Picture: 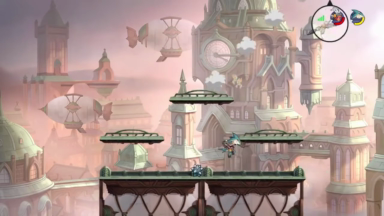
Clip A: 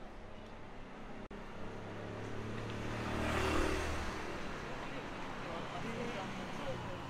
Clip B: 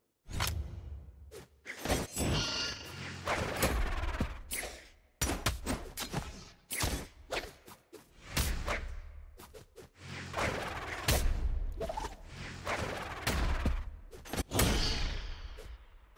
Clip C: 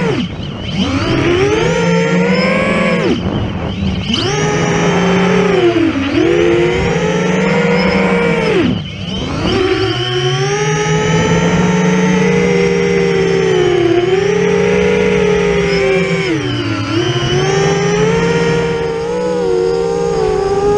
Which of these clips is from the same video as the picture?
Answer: B